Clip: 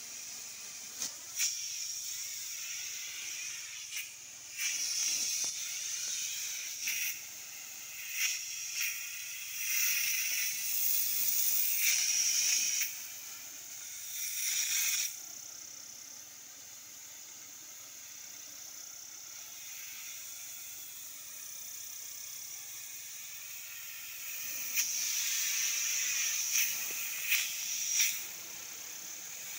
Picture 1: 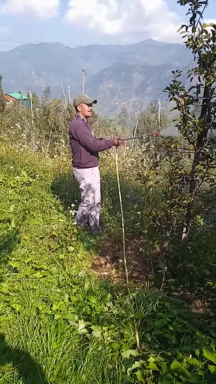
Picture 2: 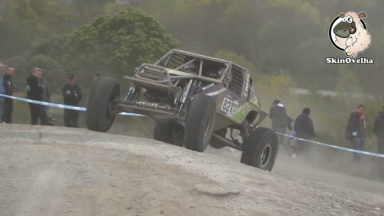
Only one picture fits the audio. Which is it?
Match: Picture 1